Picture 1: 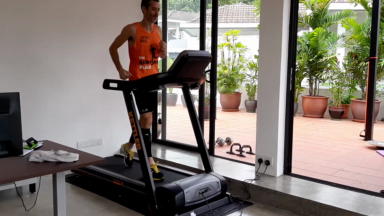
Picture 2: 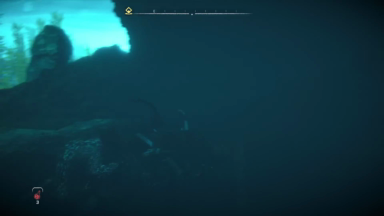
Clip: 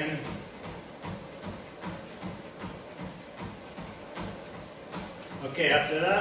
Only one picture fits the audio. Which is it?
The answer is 1